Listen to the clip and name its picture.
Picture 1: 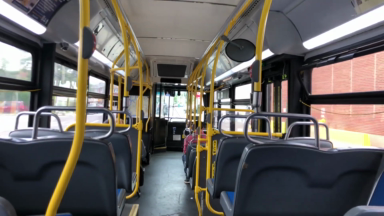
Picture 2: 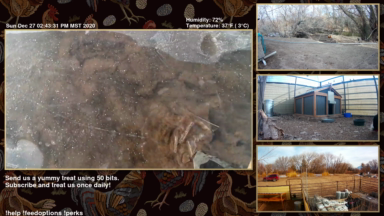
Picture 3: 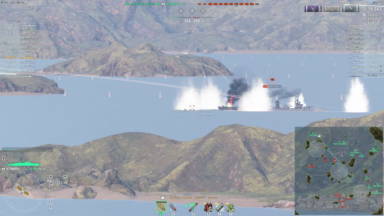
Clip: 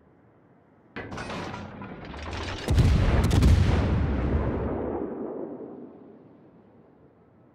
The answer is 3